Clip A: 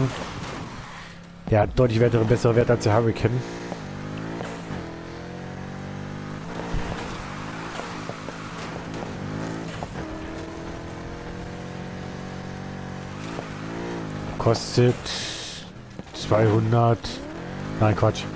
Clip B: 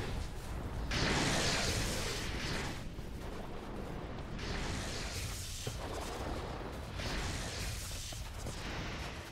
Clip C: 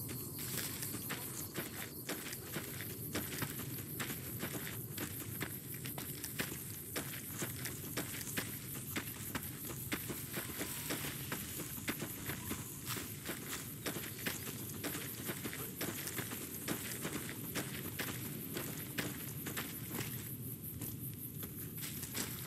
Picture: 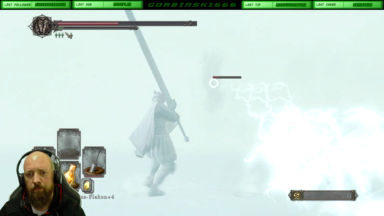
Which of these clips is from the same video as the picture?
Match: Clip B